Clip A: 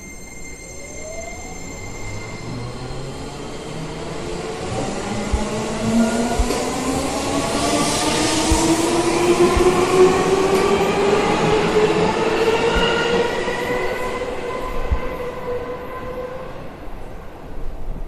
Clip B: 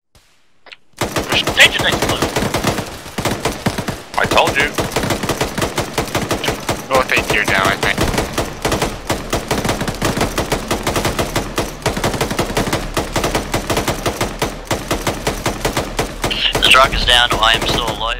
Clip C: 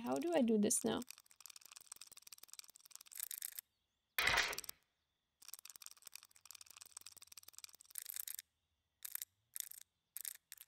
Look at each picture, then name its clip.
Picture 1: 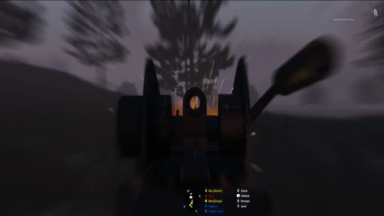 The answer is B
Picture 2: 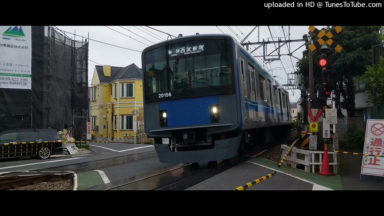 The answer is A